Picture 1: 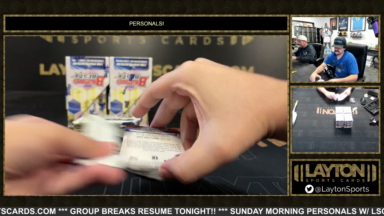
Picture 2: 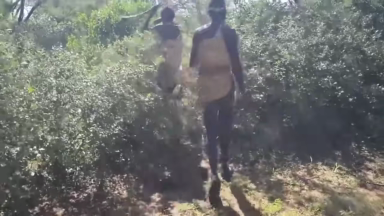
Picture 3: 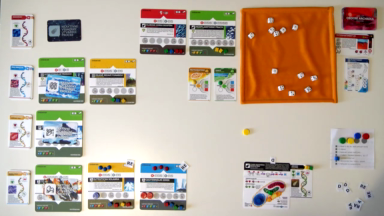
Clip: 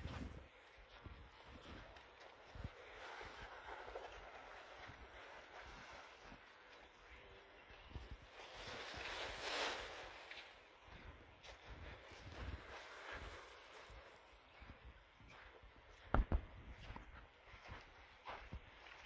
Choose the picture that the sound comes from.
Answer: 2